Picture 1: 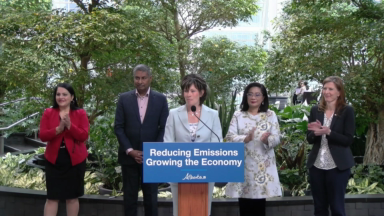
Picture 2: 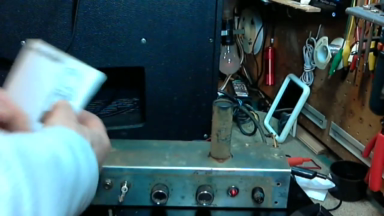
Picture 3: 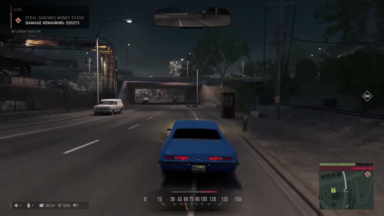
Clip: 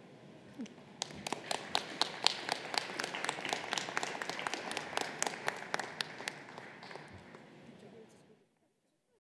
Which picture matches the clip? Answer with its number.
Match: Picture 1